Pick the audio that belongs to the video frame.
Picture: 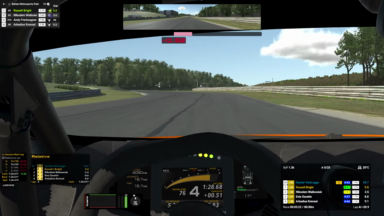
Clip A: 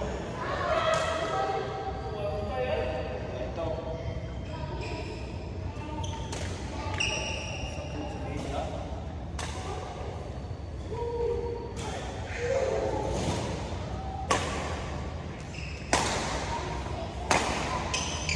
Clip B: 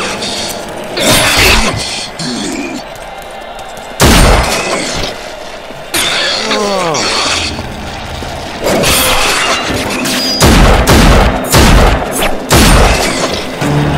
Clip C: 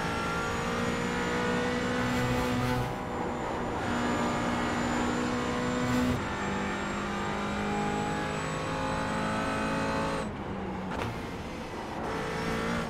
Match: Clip C